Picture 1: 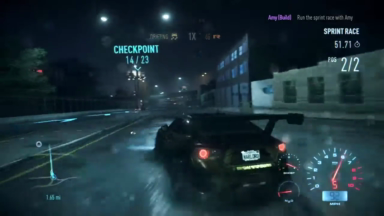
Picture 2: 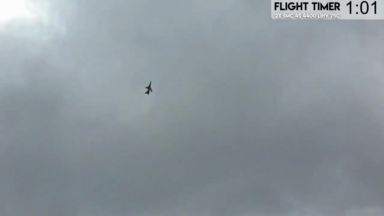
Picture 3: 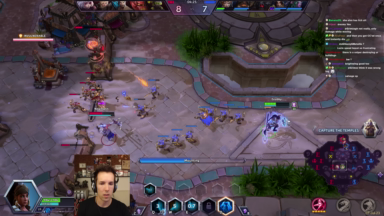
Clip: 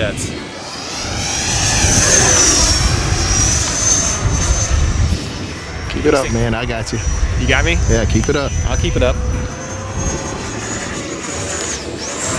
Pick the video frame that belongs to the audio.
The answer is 2